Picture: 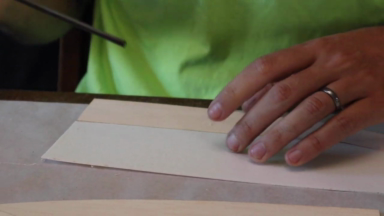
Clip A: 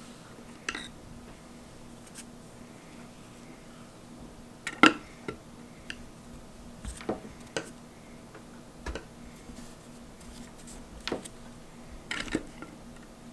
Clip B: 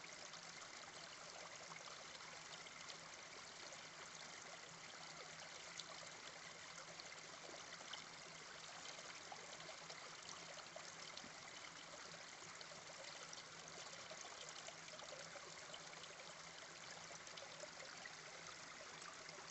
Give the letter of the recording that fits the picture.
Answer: A